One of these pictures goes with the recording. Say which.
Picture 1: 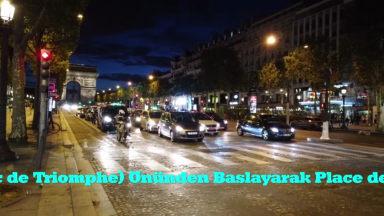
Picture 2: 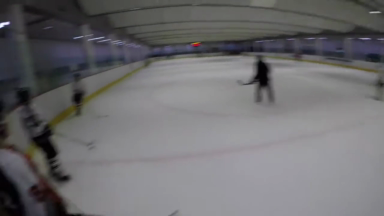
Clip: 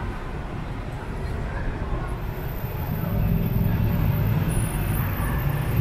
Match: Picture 1